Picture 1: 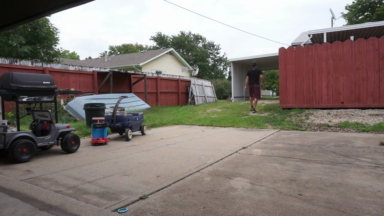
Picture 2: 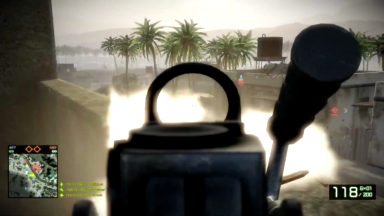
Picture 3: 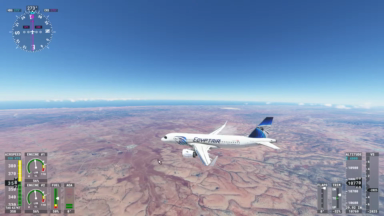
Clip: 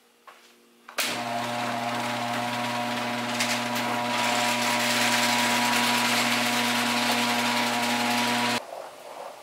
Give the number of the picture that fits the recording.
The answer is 1